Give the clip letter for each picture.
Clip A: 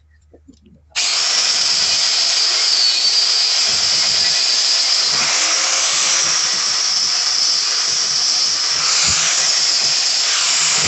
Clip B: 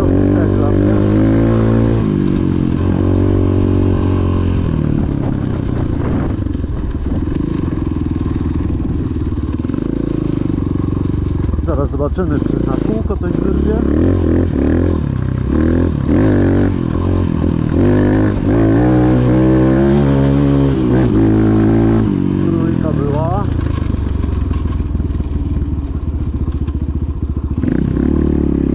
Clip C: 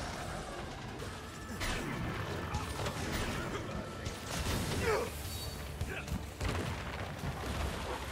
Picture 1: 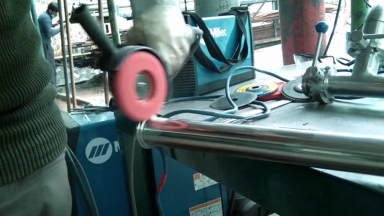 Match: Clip A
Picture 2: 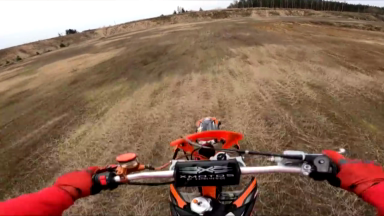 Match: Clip B